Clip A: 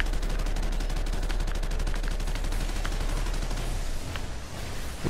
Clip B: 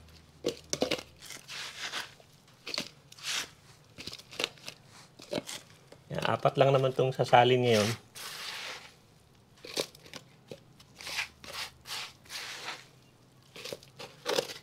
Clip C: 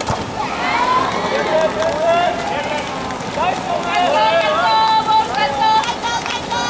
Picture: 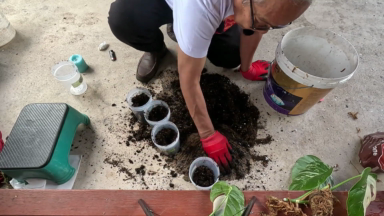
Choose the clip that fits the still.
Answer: B